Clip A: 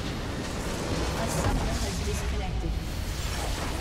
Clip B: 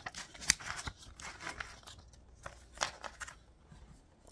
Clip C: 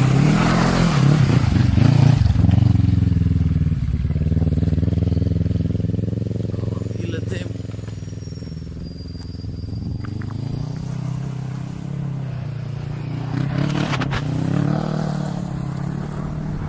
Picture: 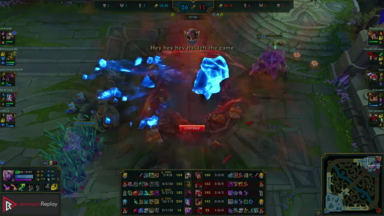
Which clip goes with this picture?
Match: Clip A